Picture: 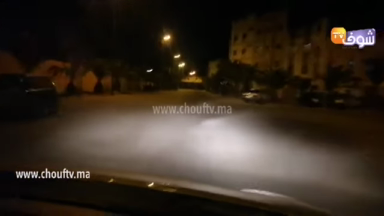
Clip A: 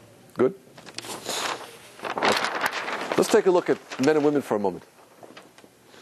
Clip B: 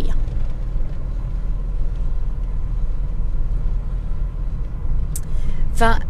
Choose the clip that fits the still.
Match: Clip B